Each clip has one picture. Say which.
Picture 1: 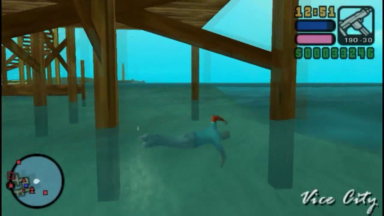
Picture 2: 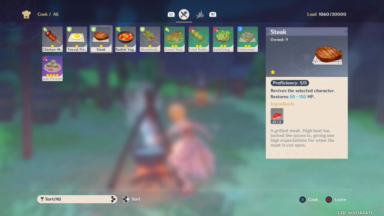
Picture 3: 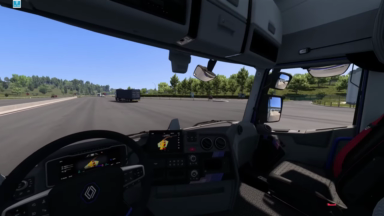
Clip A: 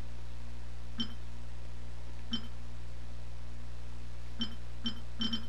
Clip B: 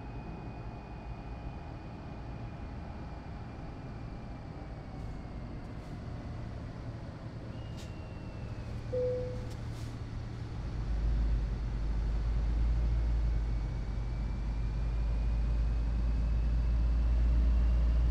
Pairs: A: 2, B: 3